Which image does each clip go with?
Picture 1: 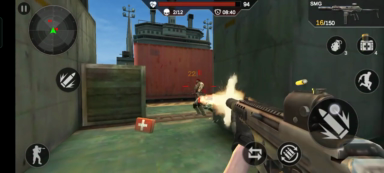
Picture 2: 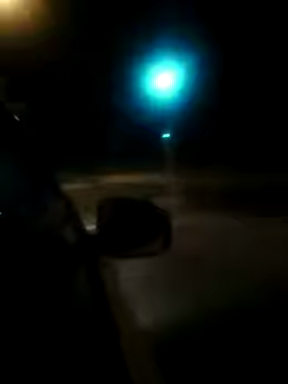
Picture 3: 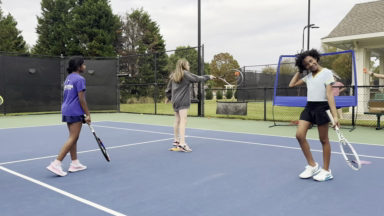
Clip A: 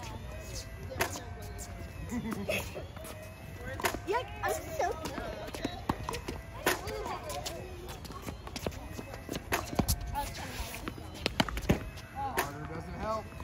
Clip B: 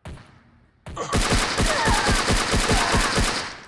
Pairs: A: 3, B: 1